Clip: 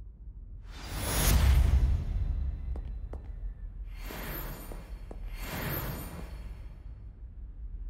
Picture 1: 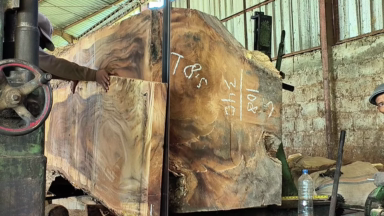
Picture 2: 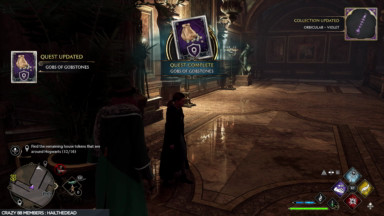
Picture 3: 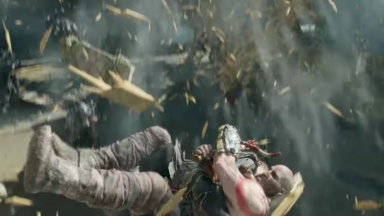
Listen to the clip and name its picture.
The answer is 2